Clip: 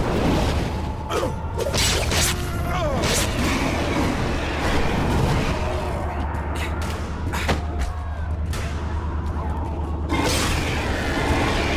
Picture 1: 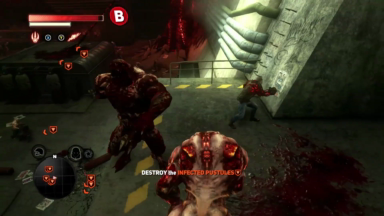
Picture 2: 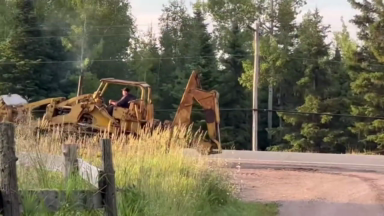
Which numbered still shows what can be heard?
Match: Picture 1